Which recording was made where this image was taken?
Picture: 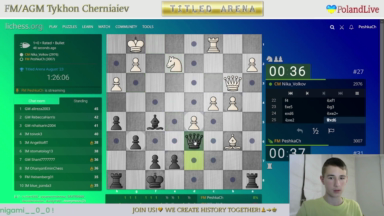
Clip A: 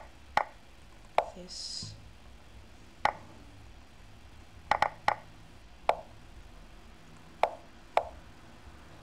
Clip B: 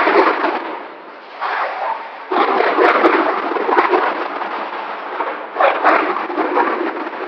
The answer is A